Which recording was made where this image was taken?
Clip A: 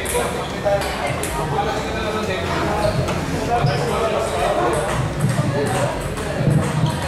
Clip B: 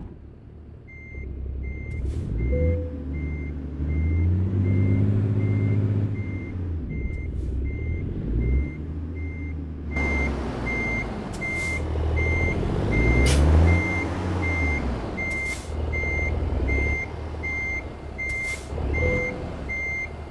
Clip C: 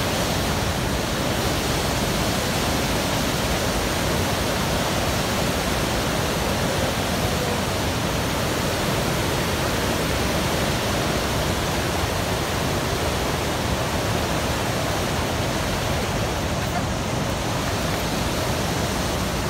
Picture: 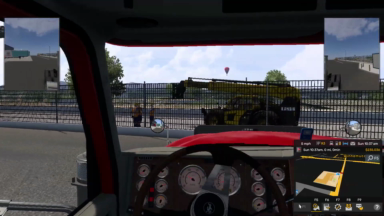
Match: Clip B